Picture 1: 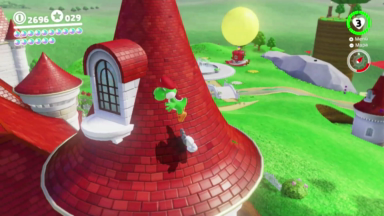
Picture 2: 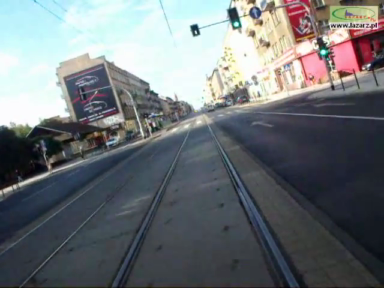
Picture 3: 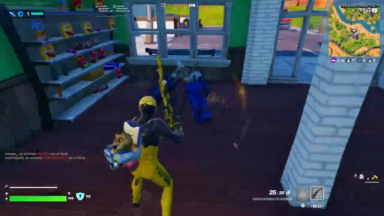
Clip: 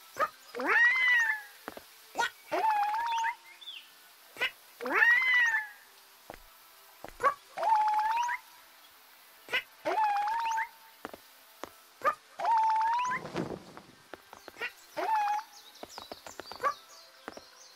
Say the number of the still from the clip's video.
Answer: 1